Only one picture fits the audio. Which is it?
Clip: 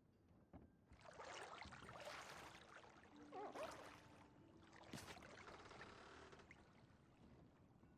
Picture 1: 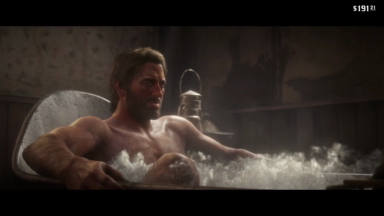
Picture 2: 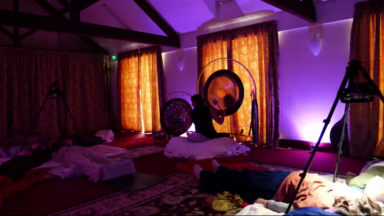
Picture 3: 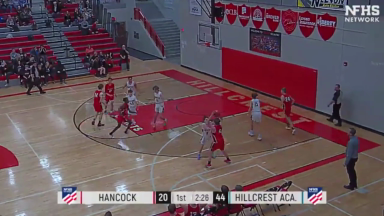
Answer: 1